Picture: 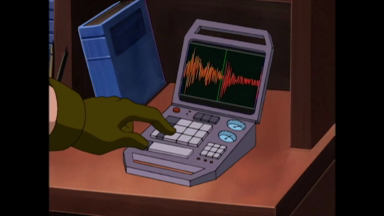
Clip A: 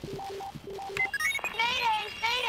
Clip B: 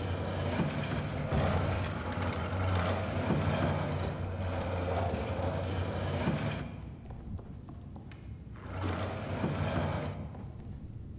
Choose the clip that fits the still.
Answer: A